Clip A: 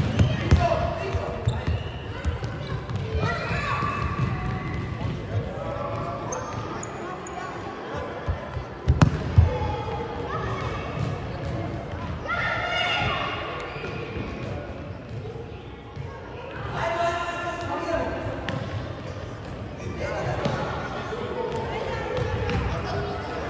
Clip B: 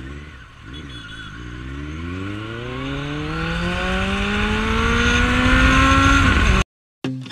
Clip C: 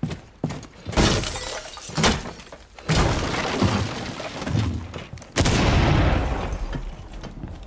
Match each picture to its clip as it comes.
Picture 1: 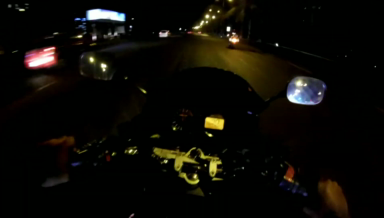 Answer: B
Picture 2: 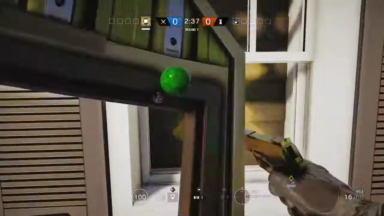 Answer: C